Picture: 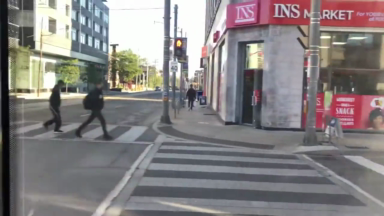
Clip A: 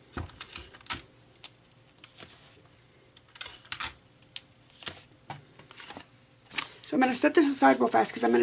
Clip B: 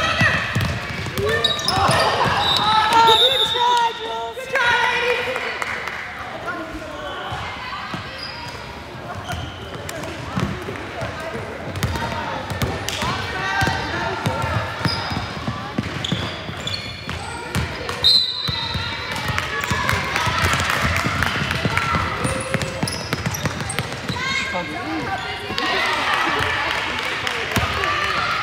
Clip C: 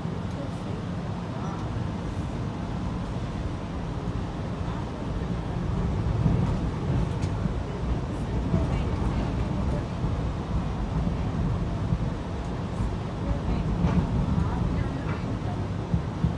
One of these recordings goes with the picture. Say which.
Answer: C